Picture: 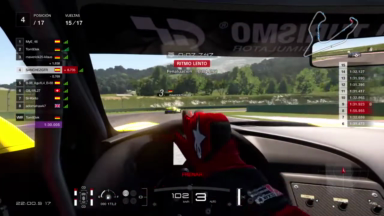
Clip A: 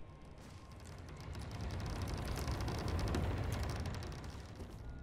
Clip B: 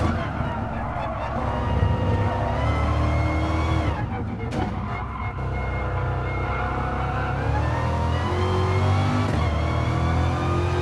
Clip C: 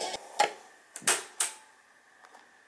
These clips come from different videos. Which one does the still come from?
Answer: B